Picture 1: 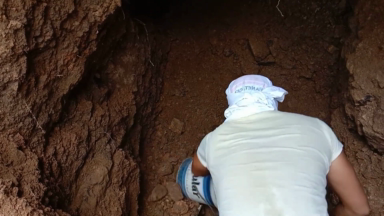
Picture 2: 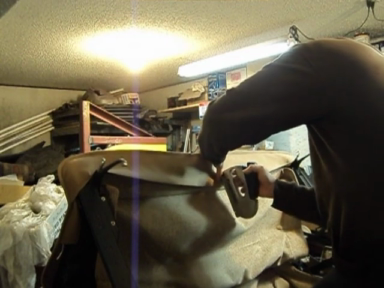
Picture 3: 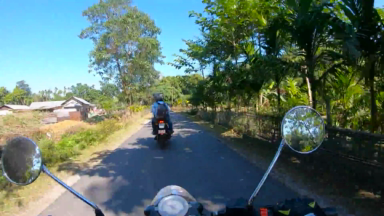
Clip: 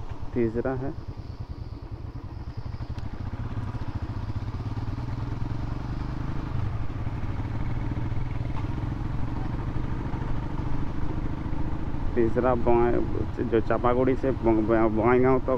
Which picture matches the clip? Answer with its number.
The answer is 3